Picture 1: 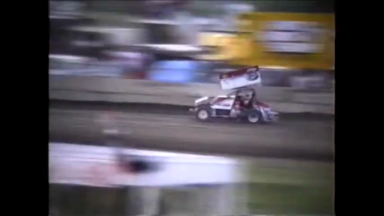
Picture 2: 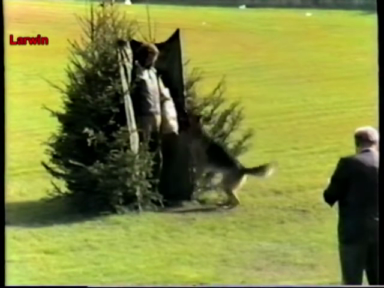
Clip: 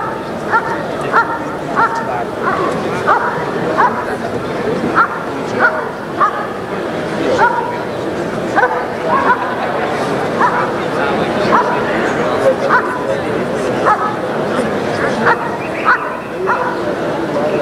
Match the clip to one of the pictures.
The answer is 2